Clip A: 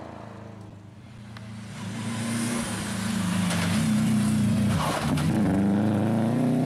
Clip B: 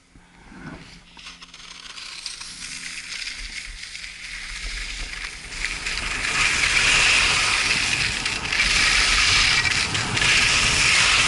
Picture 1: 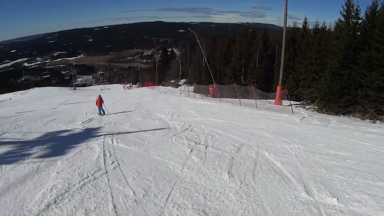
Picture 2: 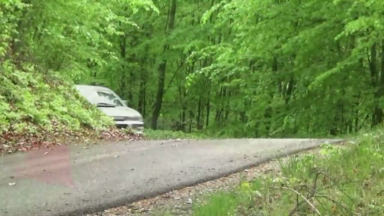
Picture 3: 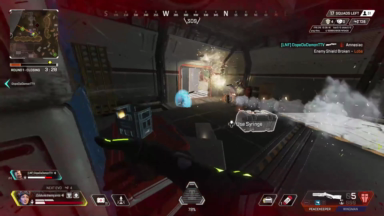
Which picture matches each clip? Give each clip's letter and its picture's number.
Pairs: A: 2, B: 1